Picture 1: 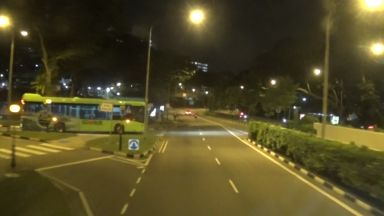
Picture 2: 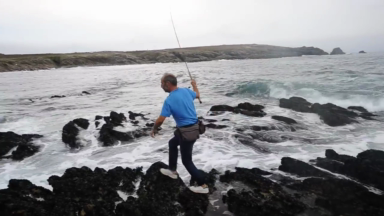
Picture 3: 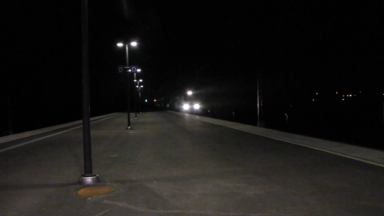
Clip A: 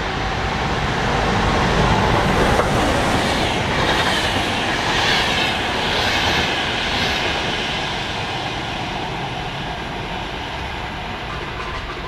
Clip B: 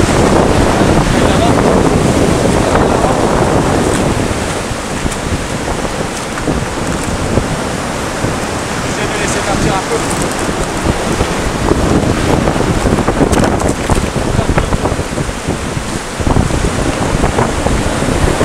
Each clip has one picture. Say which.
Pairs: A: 3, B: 2